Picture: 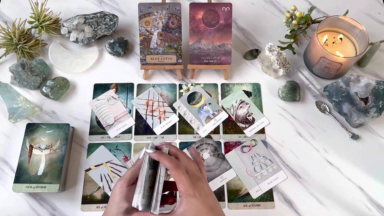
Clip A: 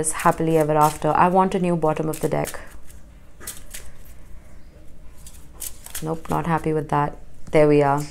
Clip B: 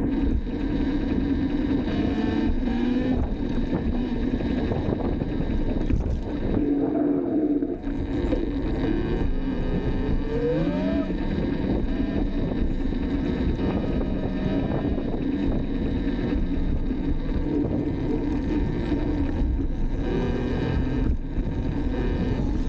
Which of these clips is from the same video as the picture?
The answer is A